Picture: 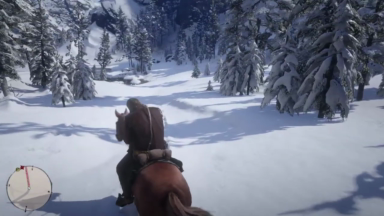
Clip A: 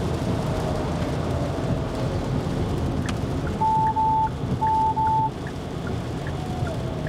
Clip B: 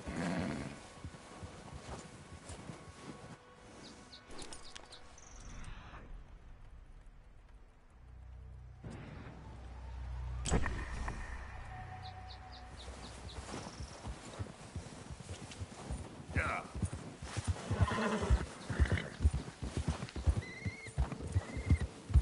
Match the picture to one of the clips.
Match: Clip B